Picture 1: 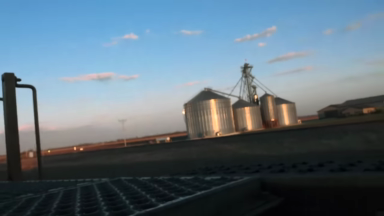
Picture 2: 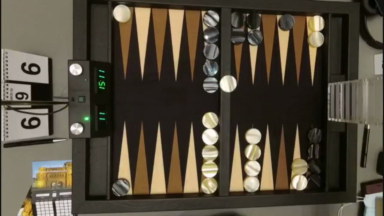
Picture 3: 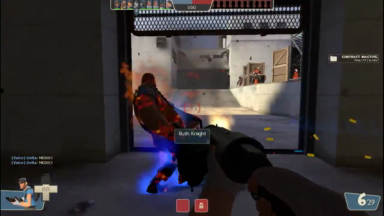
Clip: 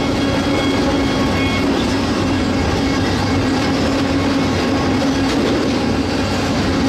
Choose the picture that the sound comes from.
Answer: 1